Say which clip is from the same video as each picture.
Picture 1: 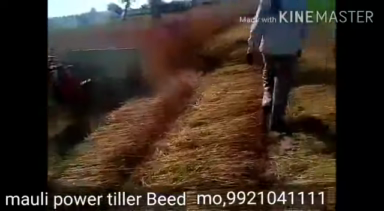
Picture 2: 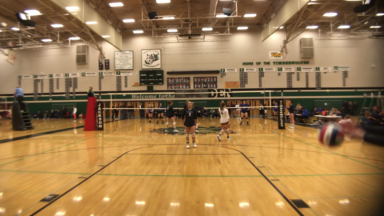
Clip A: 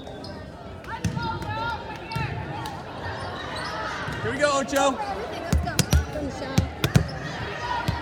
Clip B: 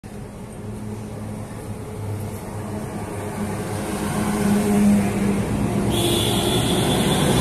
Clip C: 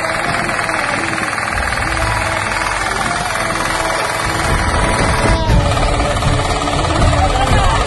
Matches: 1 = C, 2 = A